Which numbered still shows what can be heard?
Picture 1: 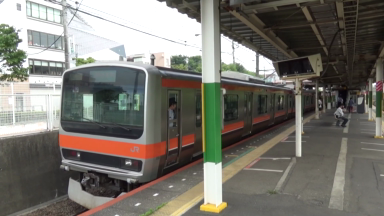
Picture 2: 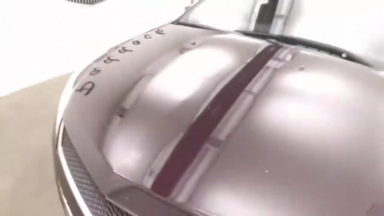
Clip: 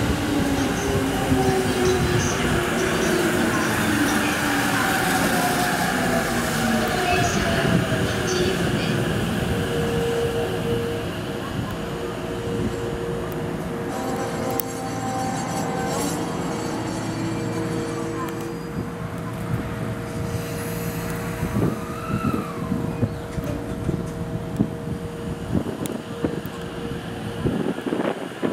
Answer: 1